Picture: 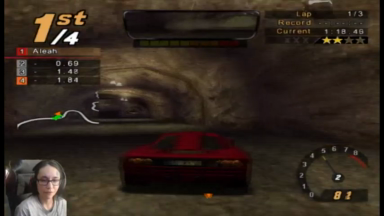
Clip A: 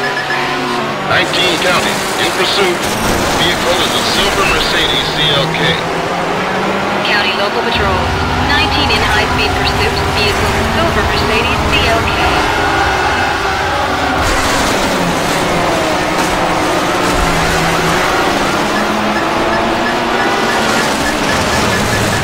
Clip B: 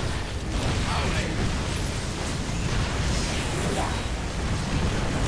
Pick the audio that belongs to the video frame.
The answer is A